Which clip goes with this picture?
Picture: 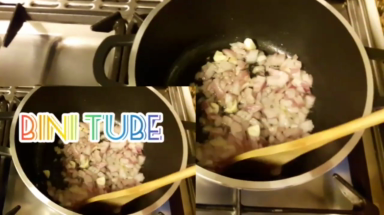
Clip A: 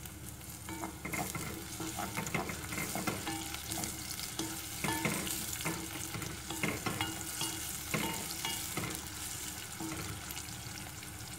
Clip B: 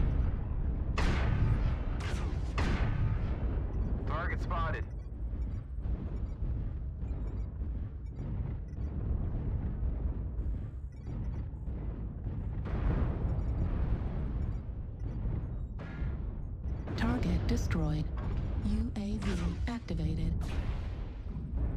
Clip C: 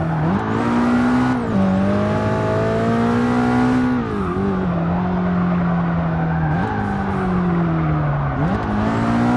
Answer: A